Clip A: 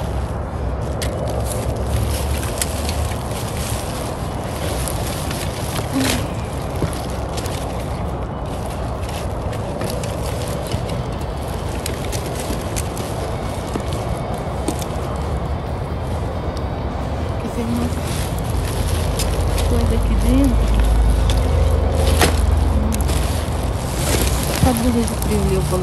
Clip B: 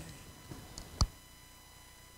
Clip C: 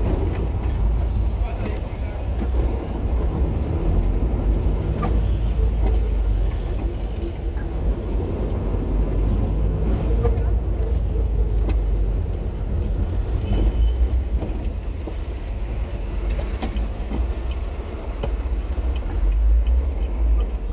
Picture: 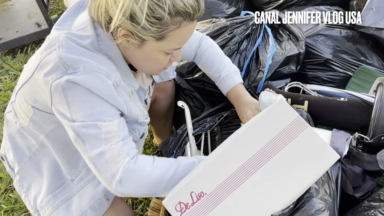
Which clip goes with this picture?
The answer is A